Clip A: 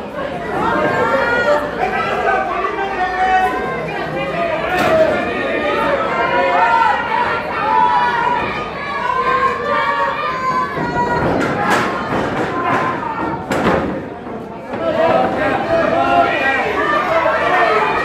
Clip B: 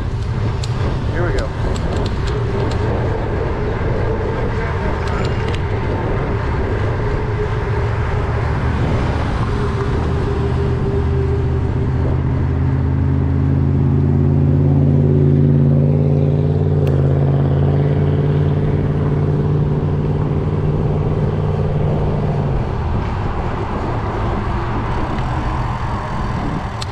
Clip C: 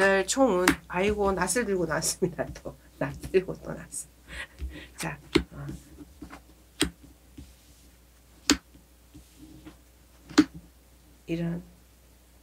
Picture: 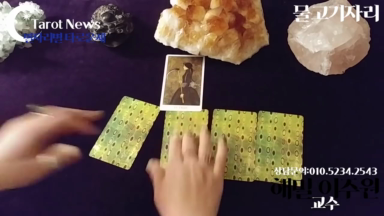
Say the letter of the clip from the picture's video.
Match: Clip C